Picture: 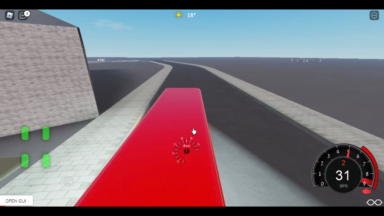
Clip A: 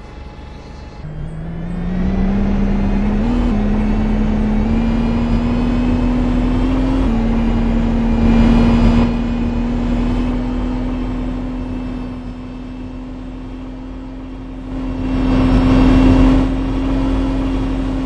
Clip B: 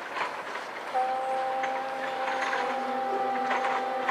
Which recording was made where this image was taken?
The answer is A